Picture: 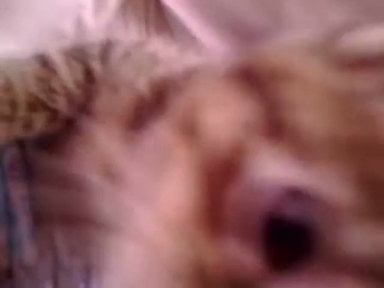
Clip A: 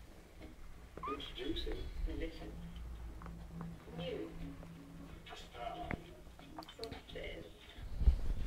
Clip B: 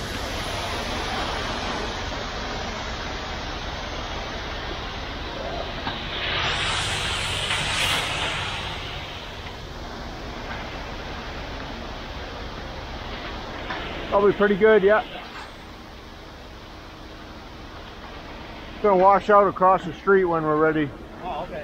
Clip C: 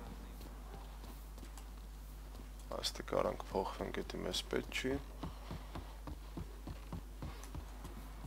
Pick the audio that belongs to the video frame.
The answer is A